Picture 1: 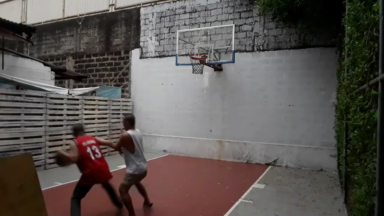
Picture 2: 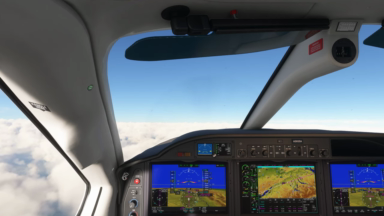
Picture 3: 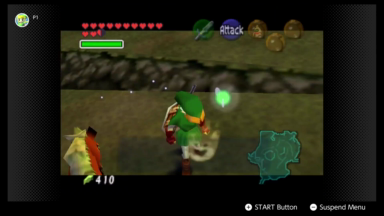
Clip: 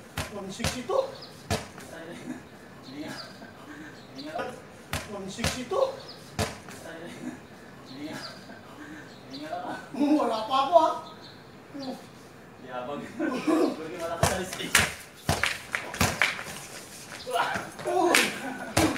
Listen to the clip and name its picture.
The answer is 1